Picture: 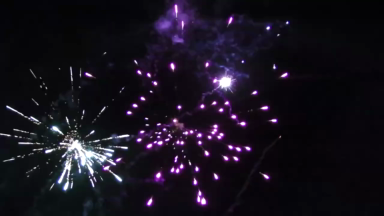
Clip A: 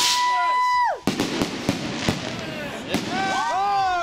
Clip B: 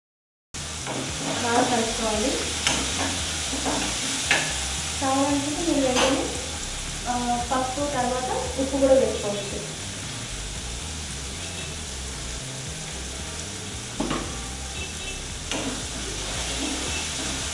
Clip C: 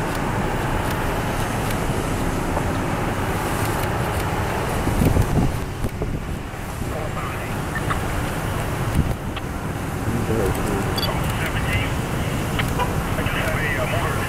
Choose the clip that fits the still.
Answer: A